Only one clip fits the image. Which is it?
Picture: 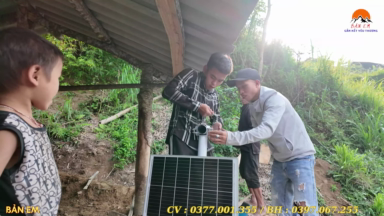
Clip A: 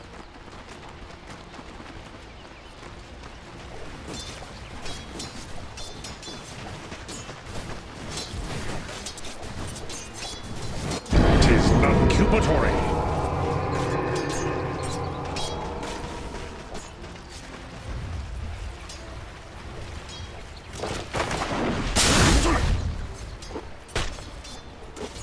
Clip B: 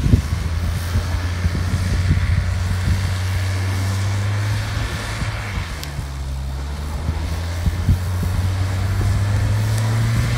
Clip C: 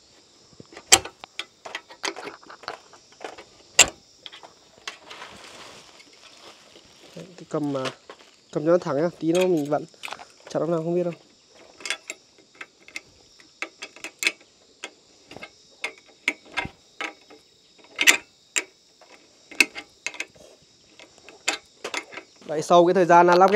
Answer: C